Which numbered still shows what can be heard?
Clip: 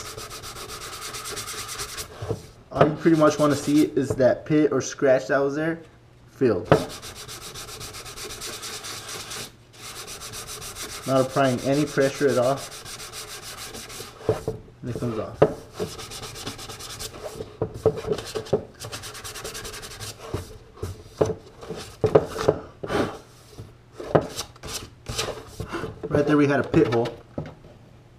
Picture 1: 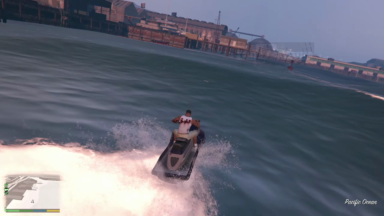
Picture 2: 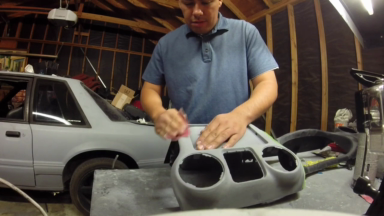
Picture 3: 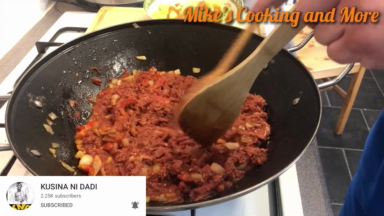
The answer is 2